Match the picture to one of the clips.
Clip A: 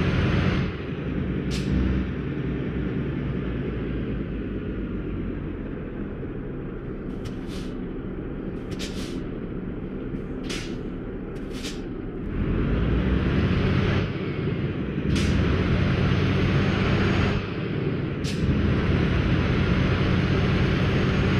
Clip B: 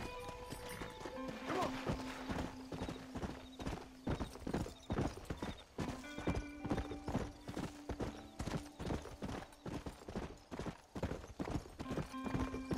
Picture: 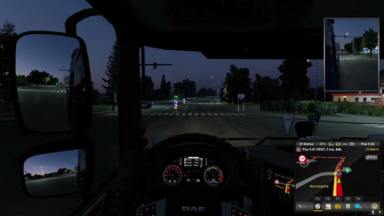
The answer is A